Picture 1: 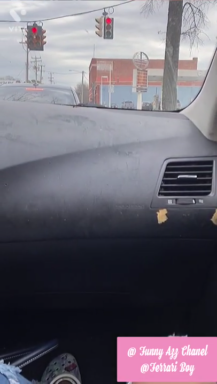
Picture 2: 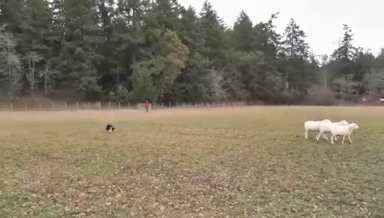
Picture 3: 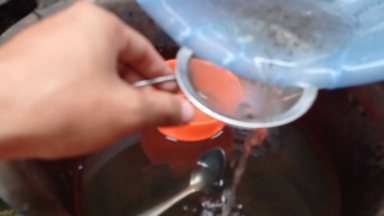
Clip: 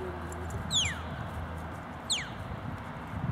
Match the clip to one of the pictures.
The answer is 2